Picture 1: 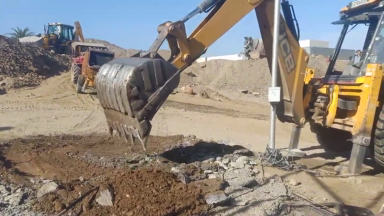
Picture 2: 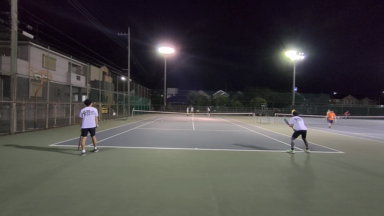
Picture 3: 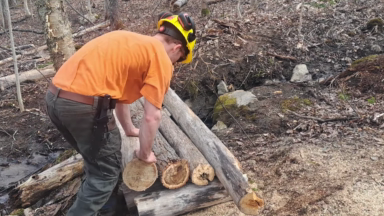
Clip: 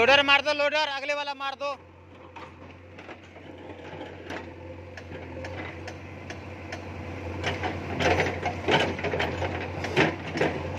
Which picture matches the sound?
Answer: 1